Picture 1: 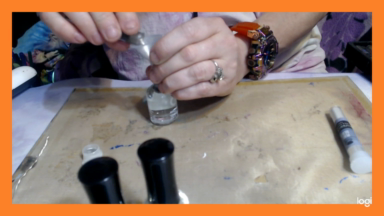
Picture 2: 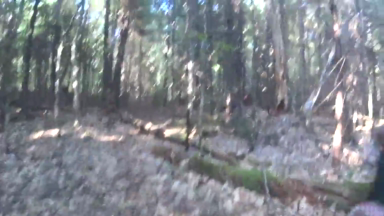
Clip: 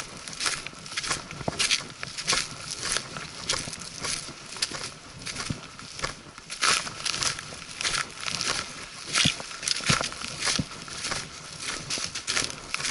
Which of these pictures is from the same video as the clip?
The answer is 2